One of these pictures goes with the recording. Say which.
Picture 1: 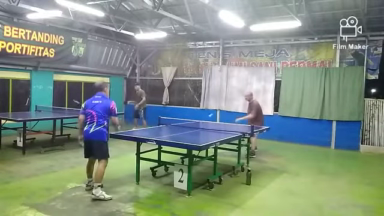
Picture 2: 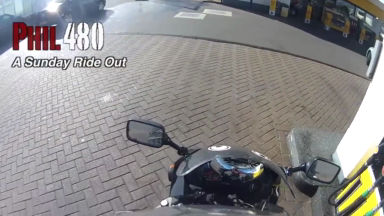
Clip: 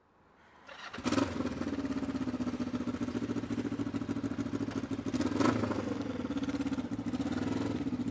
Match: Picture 2